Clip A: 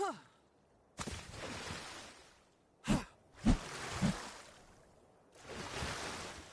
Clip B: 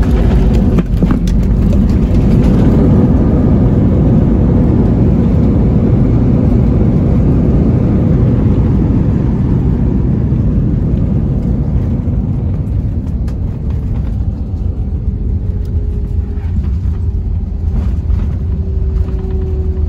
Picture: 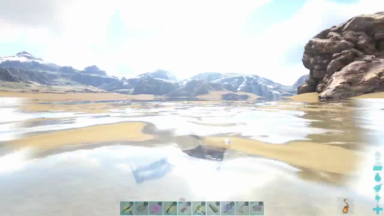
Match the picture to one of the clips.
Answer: A